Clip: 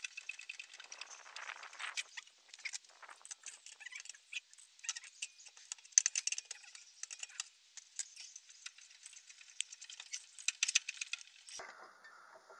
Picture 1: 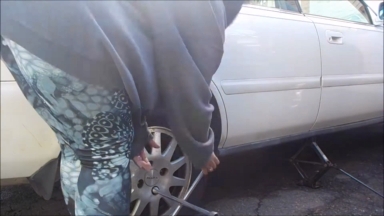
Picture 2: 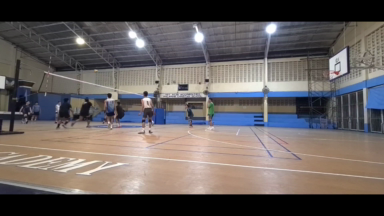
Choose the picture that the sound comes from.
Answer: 1